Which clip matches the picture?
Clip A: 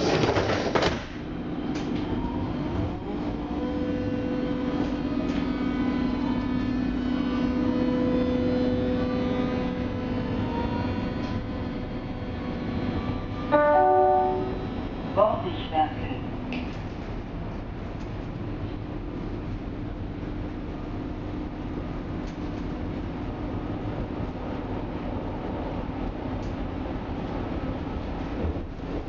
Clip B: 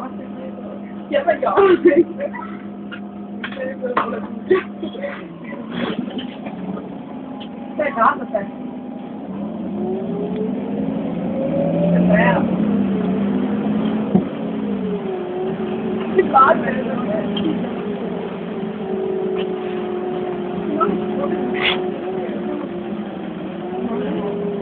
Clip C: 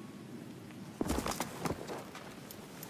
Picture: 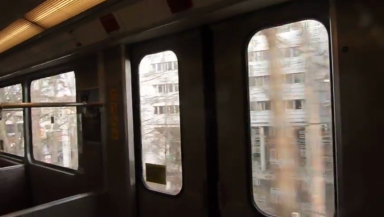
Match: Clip A